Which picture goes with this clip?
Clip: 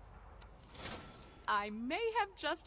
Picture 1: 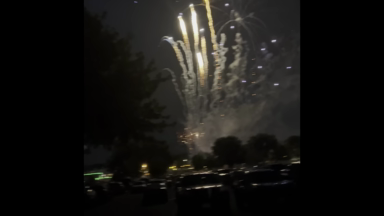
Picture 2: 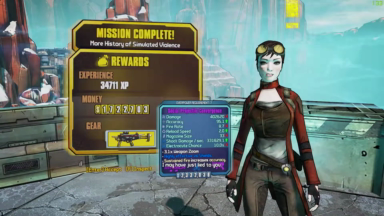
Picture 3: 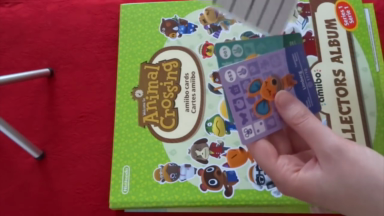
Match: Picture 2